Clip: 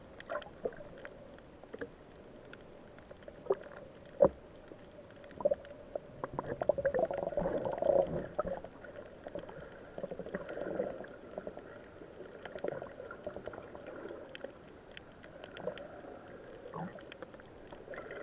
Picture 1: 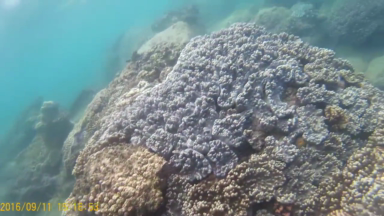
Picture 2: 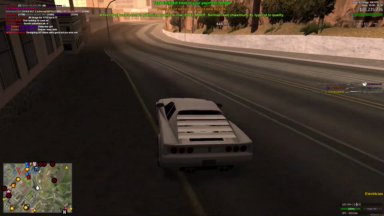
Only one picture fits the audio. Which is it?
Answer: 1